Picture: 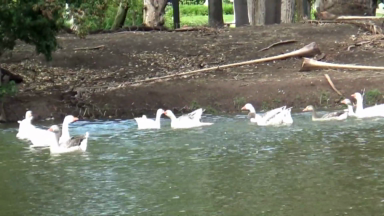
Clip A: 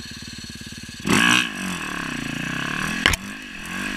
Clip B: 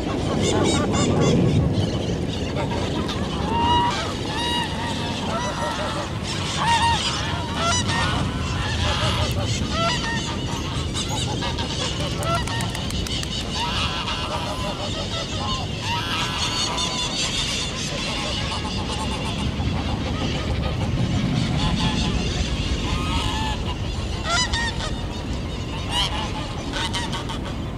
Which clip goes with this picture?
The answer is B